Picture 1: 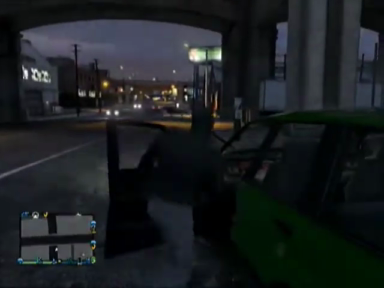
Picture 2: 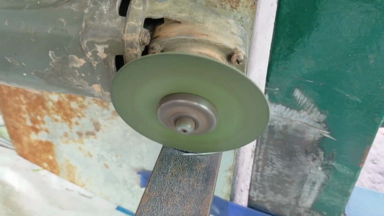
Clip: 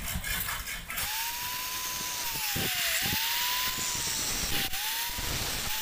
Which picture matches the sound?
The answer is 2